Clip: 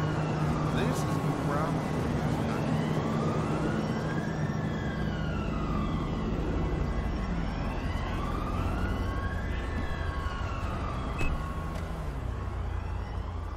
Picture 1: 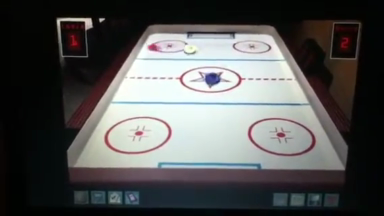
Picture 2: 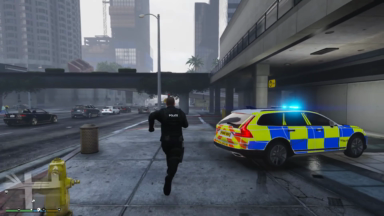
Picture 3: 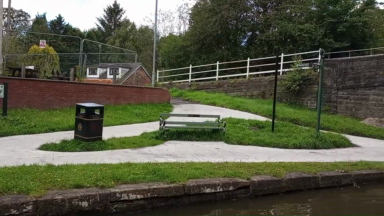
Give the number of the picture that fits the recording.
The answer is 2